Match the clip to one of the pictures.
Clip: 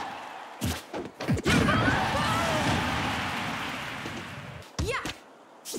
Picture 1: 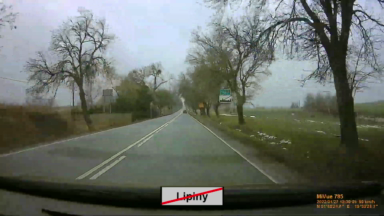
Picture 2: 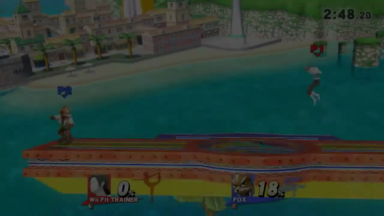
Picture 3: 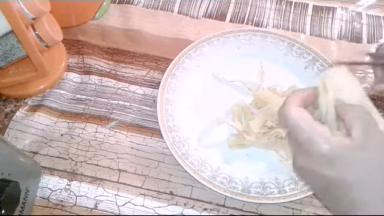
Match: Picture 2